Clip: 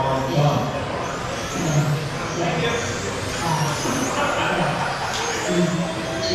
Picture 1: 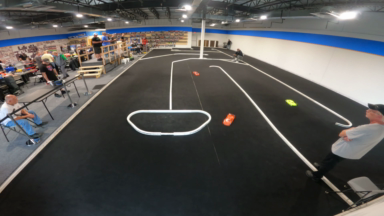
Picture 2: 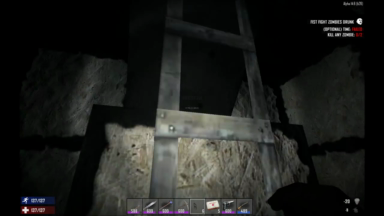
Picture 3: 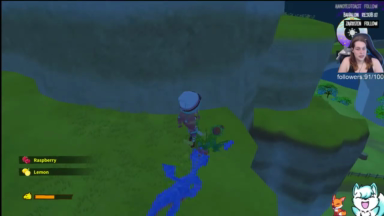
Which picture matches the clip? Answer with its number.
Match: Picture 1